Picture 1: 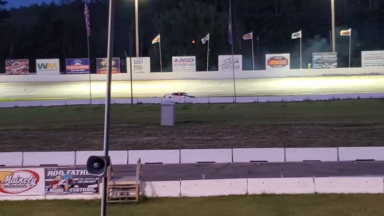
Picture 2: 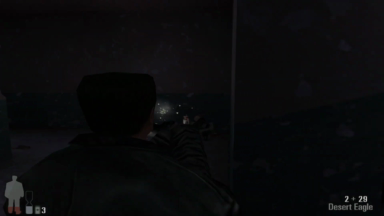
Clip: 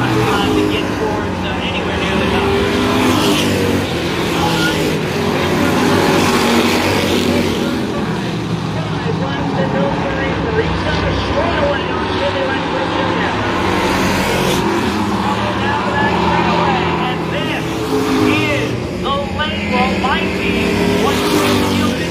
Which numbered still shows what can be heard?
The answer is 1